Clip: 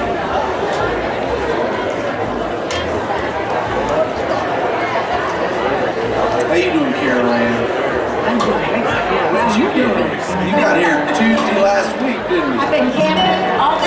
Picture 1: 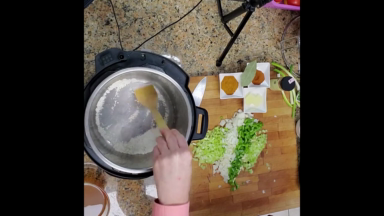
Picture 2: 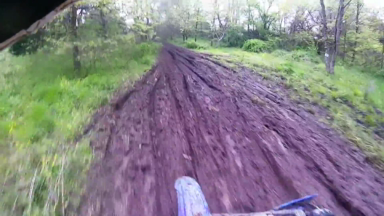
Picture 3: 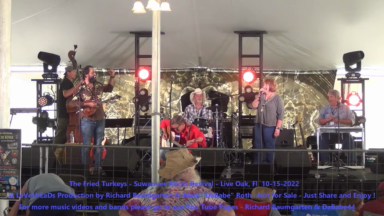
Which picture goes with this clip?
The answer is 3